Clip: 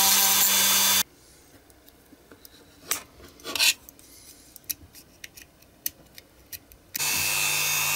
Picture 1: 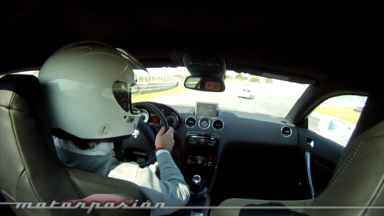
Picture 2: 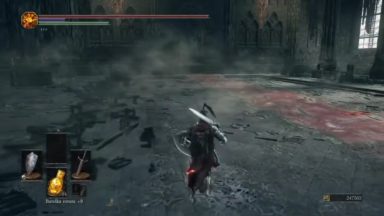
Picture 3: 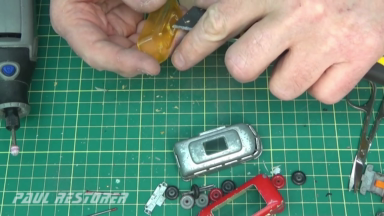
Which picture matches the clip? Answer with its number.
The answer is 3